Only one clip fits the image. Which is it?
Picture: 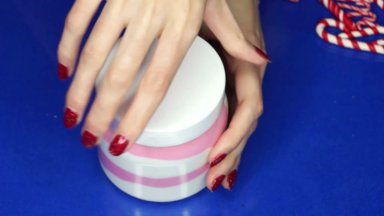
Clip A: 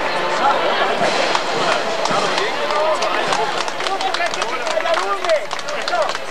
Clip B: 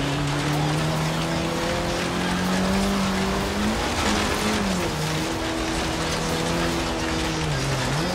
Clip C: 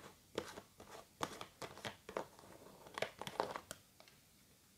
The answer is C